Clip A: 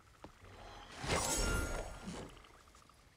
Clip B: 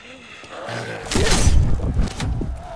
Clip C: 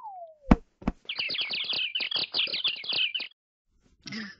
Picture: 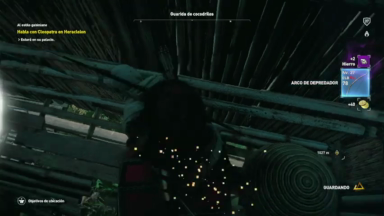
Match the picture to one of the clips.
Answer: A